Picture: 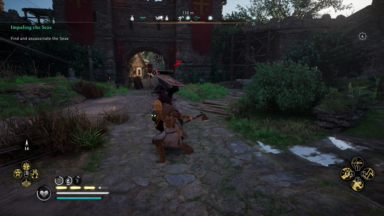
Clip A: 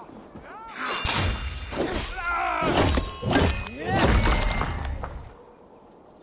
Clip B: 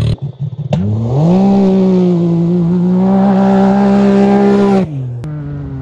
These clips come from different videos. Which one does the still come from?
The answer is A